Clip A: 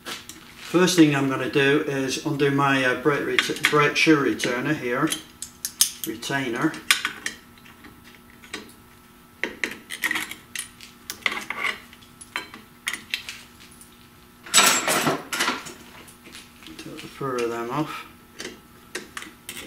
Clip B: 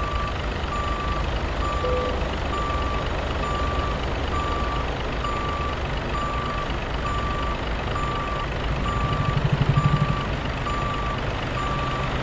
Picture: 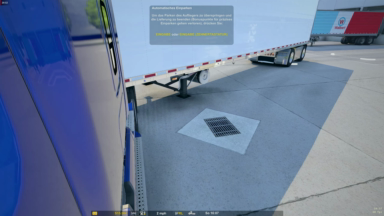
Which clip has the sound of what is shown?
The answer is B